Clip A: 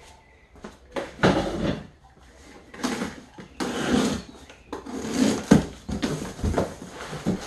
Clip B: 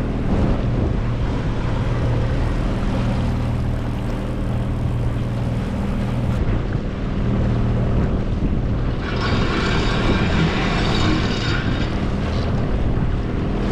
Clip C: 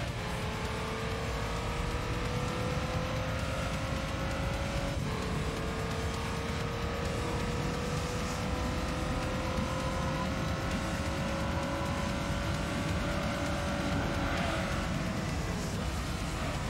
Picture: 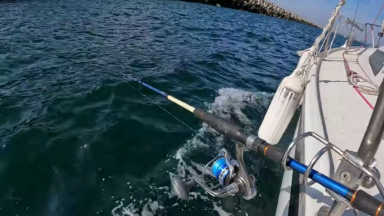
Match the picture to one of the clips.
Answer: B